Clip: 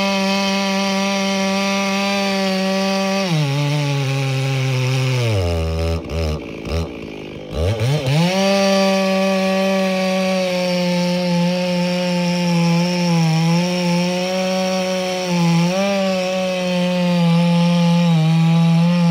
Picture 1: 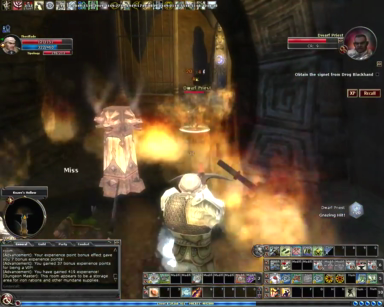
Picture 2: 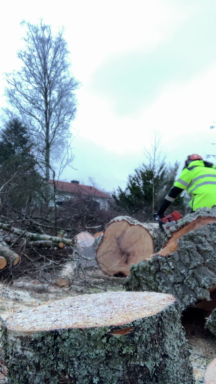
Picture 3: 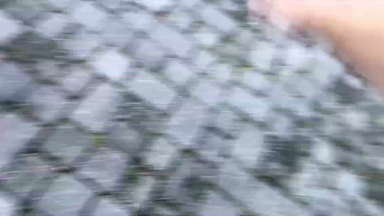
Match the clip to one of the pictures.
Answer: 2